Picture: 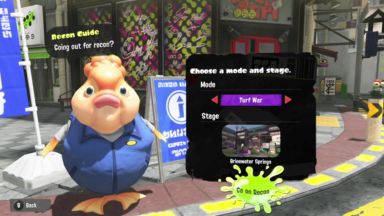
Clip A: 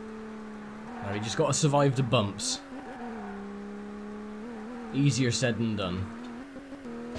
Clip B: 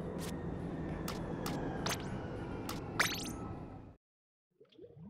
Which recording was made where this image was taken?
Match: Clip B